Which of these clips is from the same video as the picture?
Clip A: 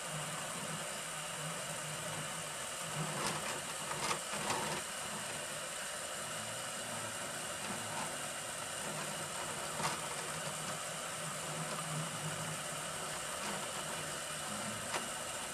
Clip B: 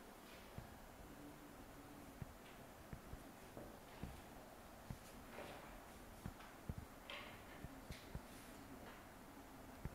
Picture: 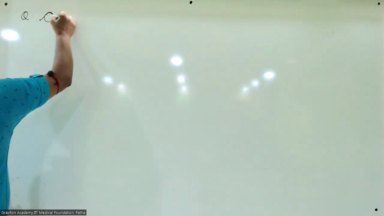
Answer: B